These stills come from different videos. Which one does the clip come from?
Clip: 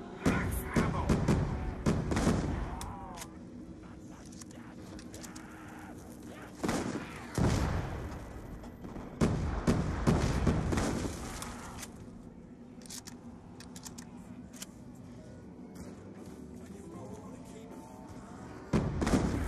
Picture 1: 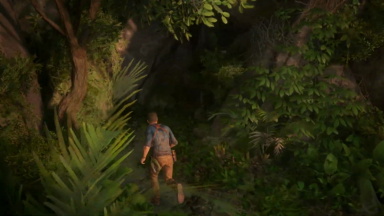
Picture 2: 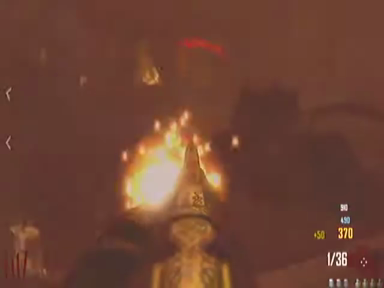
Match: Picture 2